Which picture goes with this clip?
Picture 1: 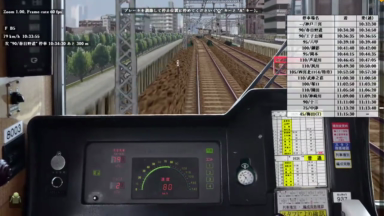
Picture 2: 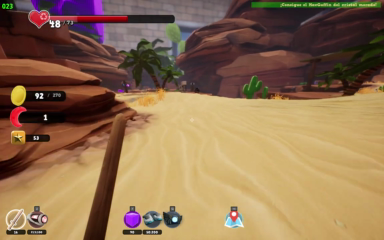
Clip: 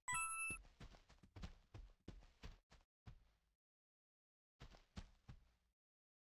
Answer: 2